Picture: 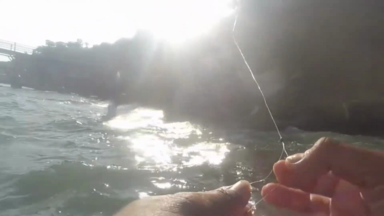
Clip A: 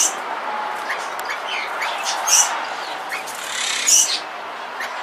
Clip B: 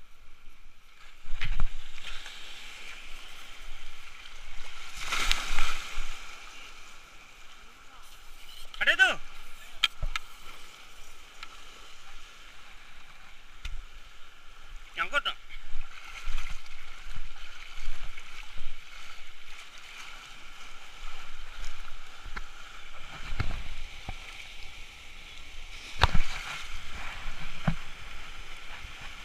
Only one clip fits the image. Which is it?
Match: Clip B